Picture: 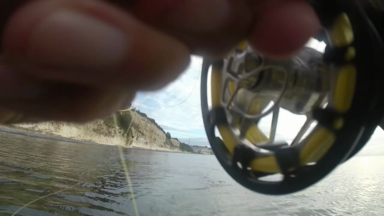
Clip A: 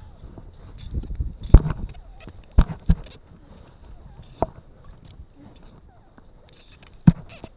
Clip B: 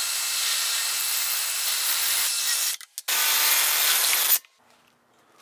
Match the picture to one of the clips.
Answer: A